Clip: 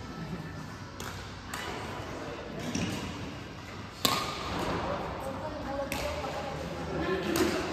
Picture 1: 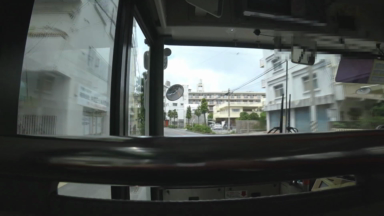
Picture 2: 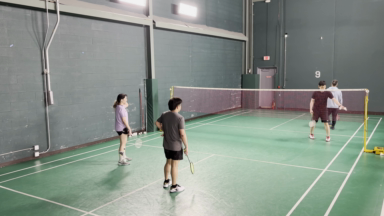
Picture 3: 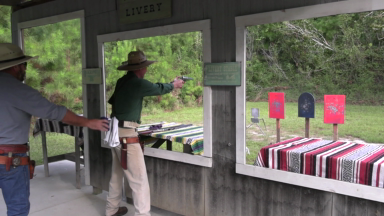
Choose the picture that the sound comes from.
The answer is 2